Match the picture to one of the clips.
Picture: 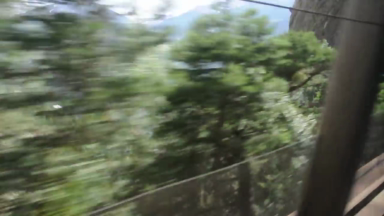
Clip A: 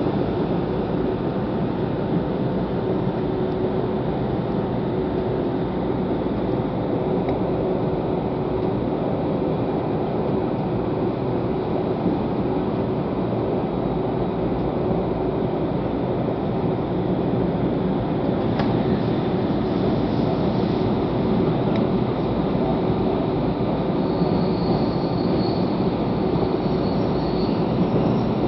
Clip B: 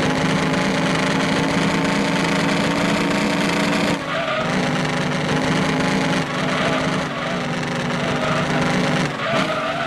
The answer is A